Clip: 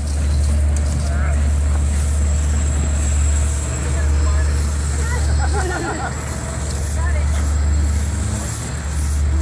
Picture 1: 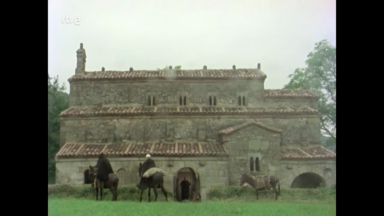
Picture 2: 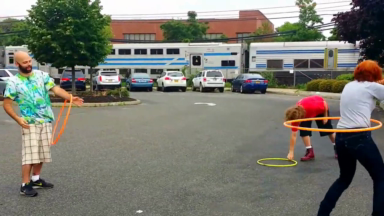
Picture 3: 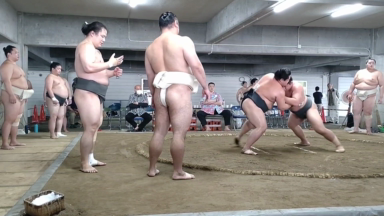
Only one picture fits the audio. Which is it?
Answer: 2